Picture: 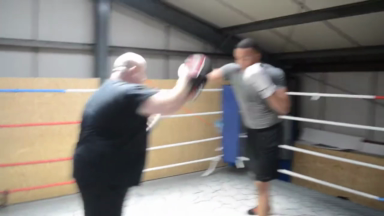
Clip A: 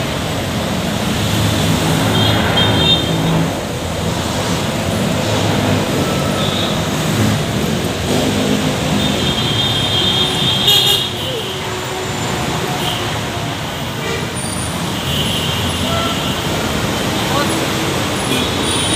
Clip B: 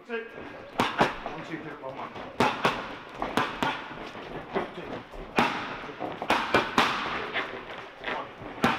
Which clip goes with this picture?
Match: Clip B